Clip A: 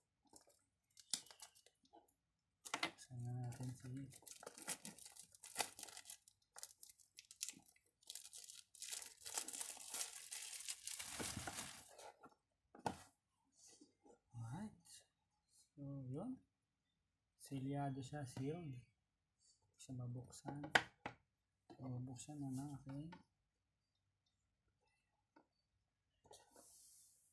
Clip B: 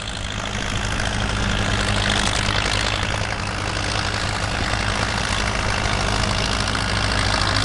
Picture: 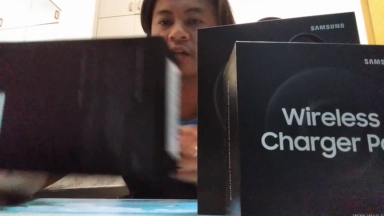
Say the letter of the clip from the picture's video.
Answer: A